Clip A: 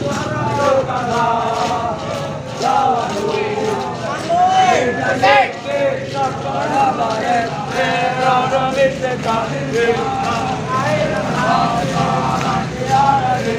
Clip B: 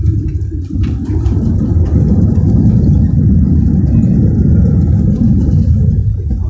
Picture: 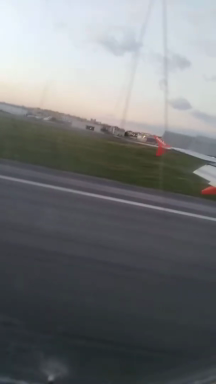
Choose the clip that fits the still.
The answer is B